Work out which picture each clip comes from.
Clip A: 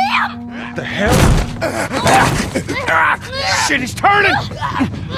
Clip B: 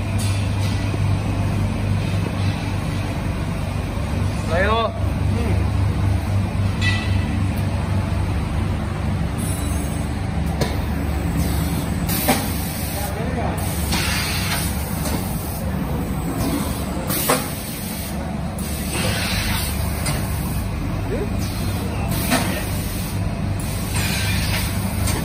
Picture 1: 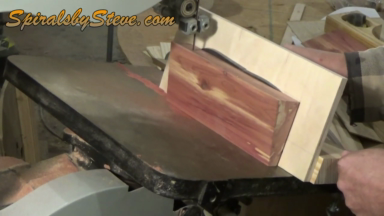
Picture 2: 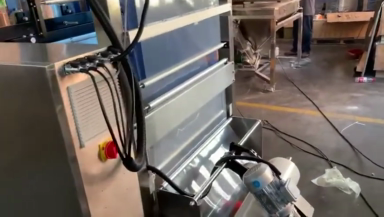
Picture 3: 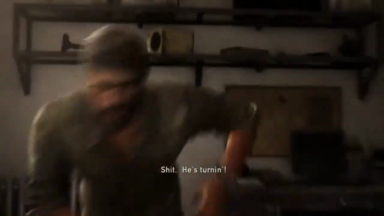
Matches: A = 3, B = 2